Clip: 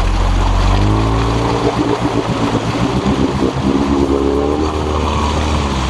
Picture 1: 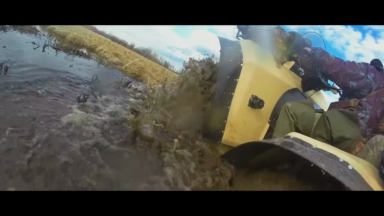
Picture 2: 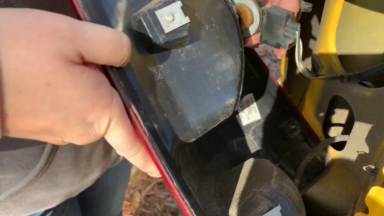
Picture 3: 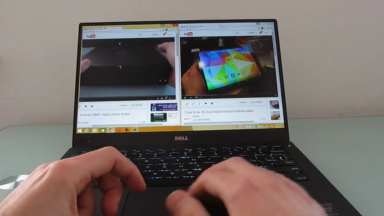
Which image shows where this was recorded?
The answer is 1